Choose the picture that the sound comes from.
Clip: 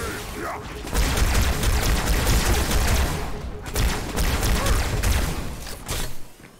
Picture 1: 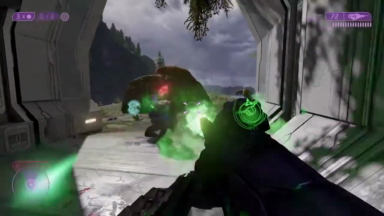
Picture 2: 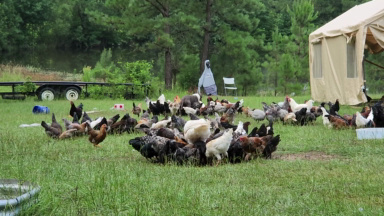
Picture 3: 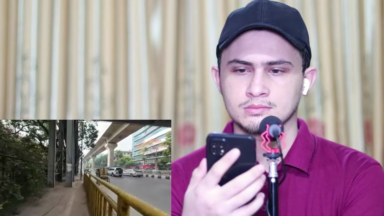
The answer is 1